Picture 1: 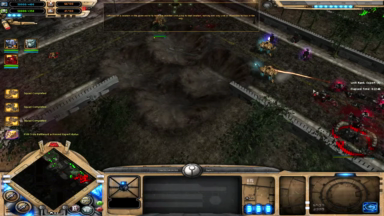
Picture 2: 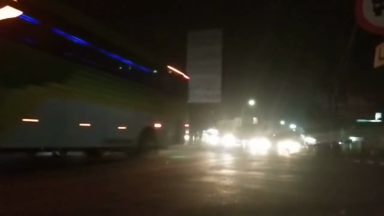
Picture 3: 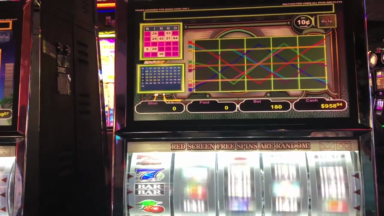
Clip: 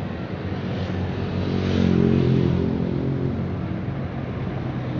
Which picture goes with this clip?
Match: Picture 2